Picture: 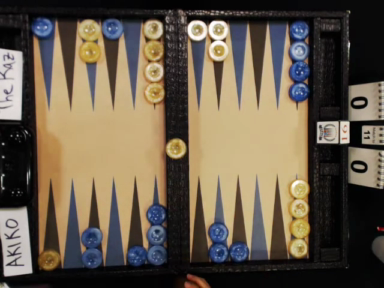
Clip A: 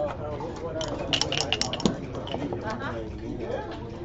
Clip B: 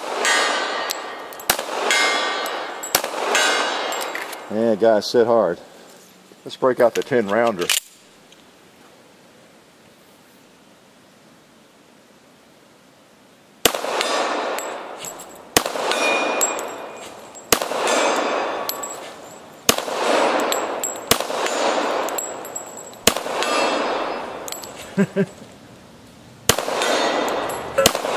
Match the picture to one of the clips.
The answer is A